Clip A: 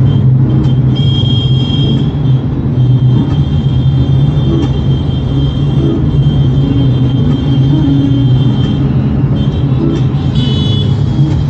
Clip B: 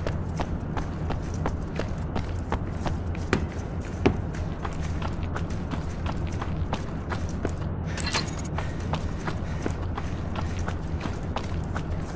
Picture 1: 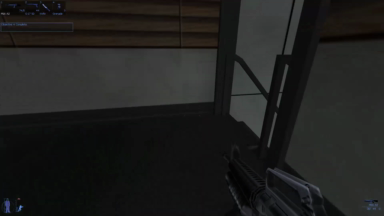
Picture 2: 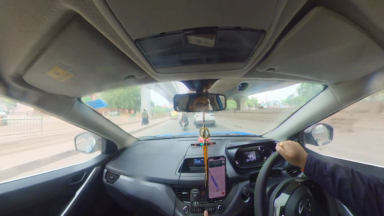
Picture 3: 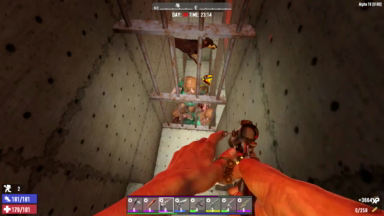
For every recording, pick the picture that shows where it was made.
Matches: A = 2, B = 1